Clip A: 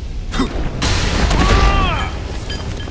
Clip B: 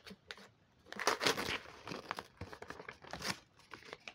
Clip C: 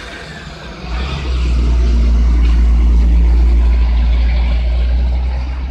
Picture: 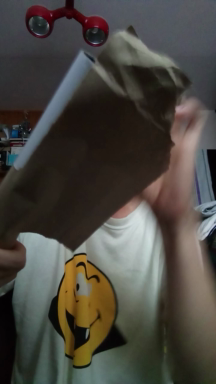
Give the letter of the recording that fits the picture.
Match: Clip B